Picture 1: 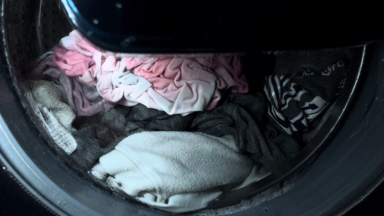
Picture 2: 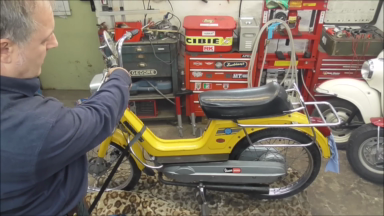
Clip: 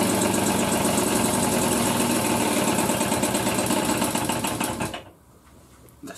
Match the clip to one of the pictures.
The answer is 2